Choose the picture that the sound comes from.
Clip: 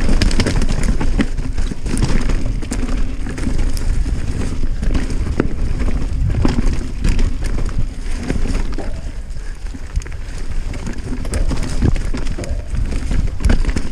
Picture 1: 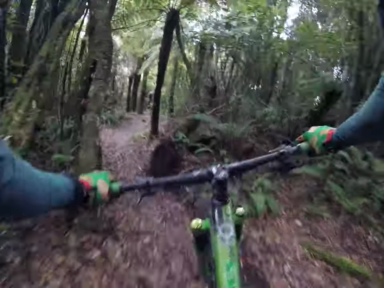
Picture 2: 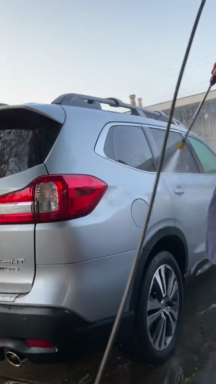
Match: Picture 1